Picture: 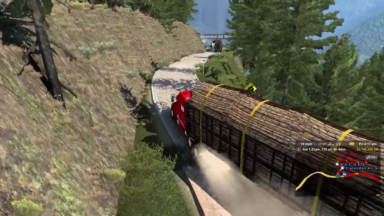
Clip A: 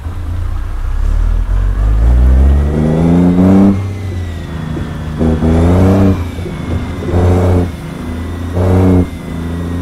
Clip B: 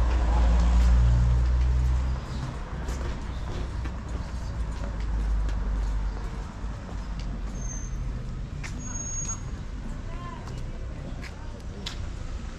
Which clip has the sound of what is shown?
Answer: A